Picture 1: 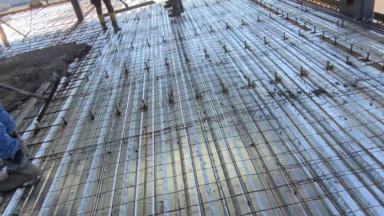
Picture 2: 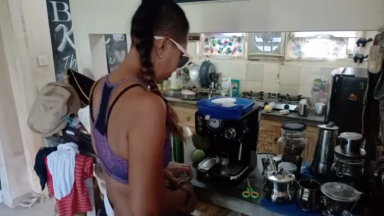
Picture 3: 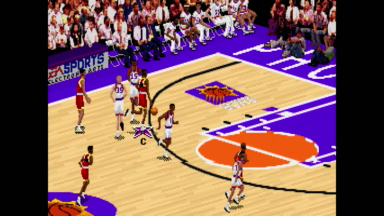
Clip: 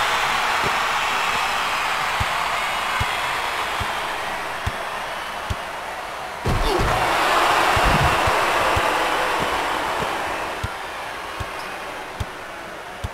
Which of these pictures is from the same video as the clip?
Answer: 3